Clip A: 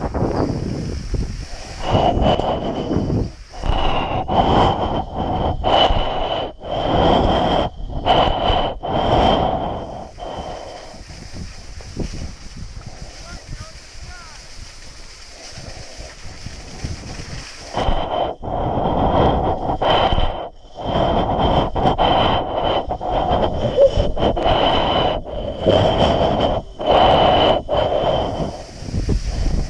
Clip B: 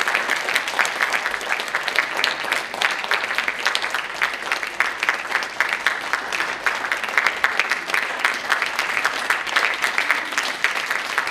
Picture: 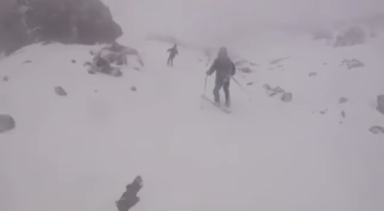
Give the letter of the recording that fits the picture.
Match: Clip A